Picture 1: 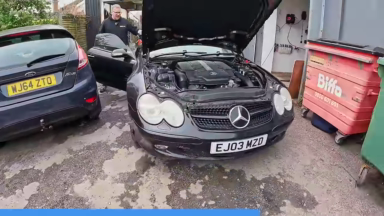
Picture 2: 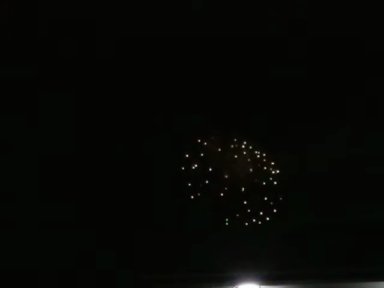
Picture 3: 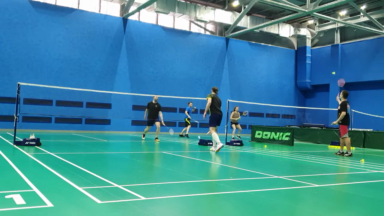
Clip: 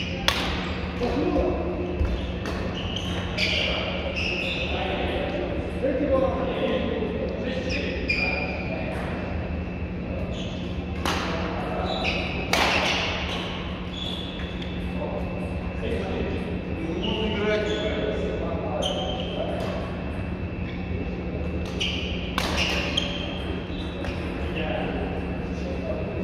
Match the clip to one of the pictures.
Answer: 3